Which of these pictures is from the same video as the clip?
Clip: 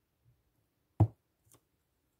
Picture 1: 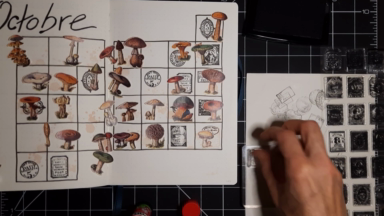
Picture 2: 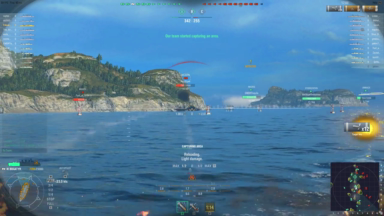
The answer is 1